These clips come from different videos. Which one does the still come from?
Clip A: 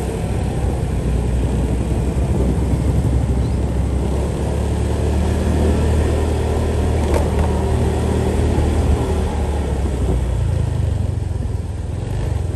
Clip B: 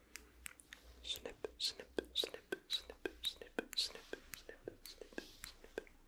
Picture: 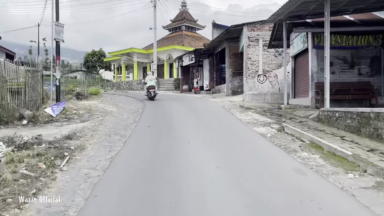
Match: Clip A